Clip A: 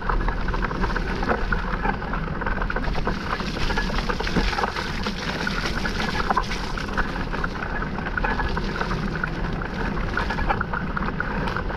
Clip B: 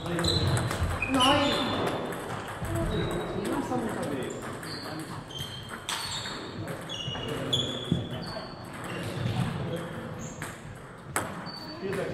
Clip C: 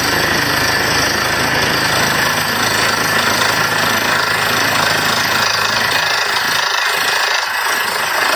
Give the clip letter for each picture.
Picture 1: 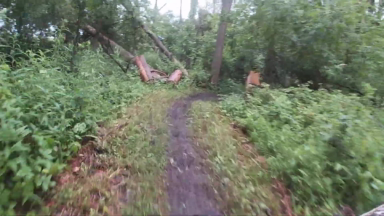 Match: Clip A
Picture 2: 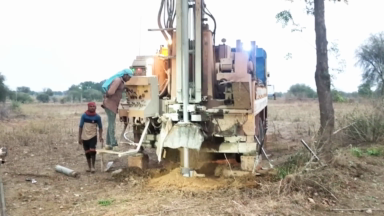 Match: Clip C